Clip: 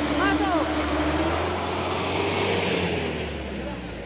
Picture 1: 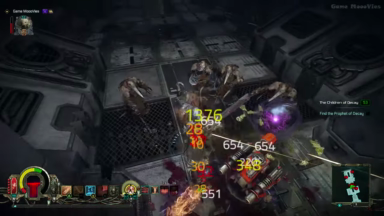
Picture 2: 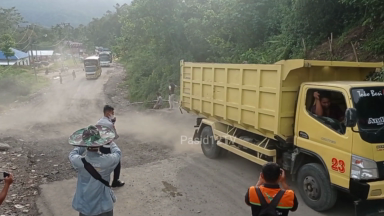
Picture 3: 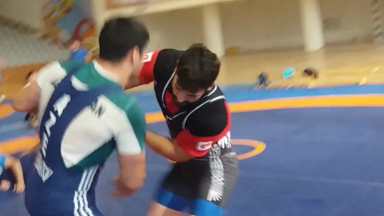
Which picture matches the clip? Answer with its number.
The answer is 2